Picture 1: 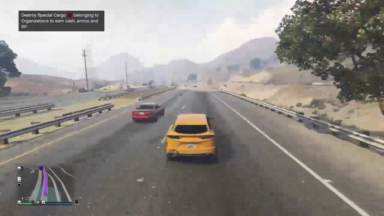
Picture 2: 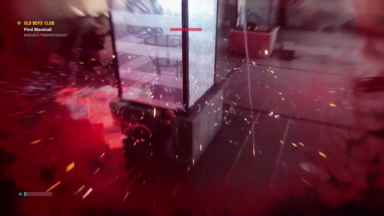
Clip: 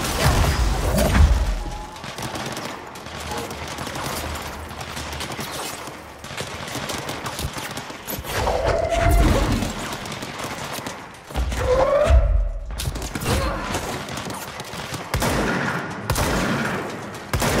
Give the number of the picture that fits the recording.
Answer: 2